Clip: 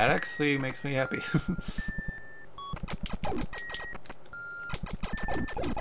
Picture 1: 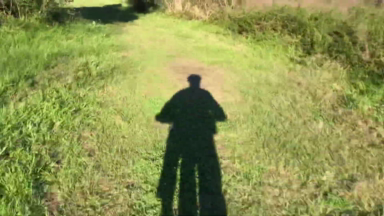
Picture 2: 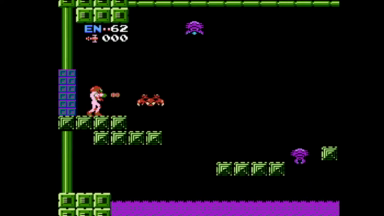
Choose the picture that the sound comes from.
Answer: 2